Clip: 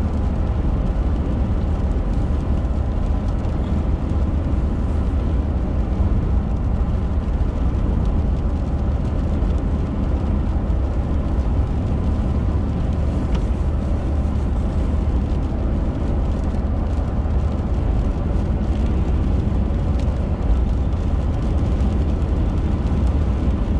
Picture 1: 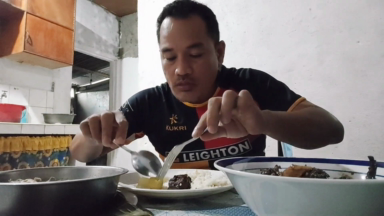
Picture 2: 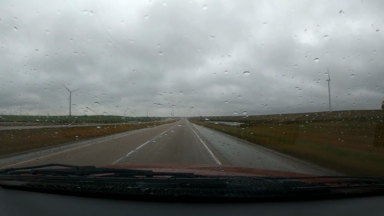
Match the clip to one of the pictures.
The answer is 2